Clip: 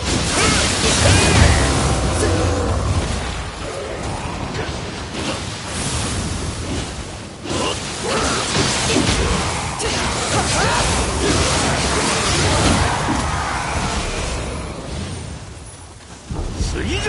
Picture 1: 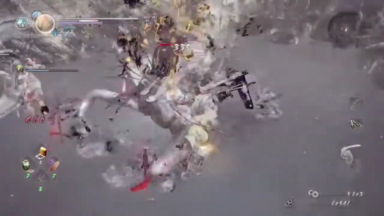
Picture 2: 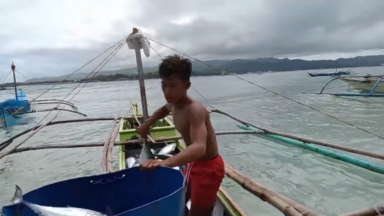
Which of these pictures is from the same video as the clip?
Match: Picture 1